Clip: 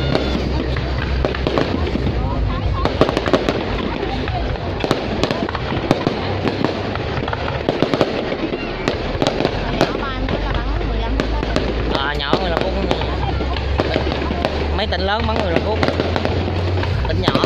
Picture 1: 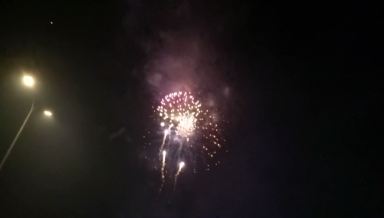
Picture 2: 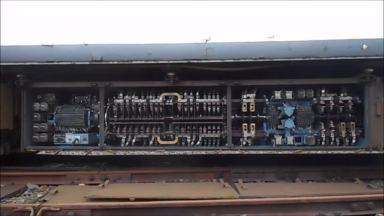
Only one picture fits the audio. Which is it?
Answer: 1